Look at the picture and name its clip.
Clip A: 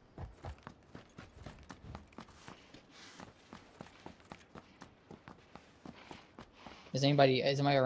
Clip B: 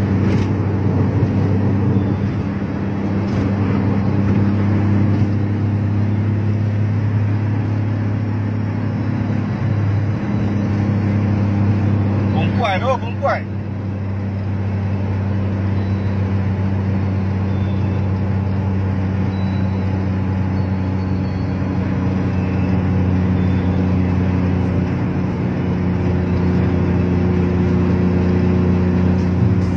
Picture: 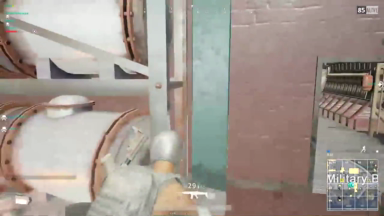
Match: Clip A